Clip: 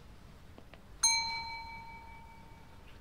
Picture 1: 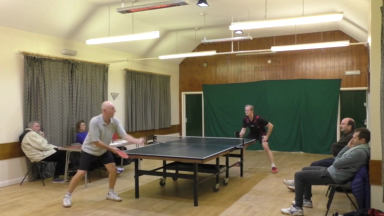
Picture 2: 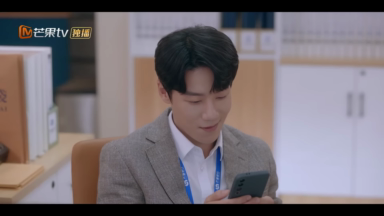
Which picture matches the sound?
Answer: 2